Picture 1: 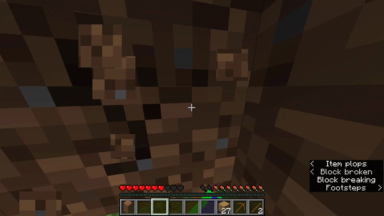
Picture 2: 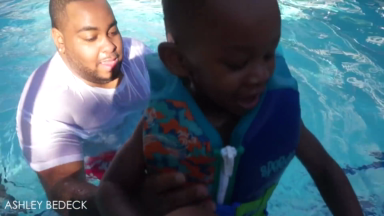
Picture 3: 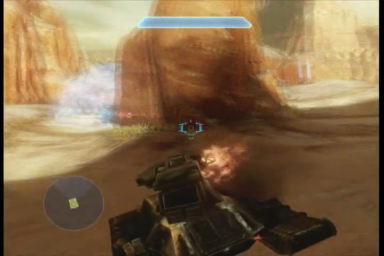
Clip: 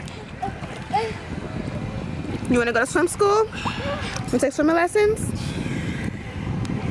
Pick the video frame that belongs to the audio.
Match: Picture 2